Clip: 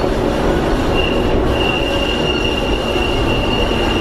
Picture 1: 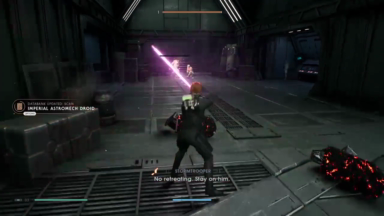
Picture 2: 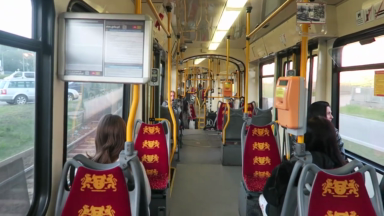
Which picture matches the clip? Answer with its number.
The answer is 2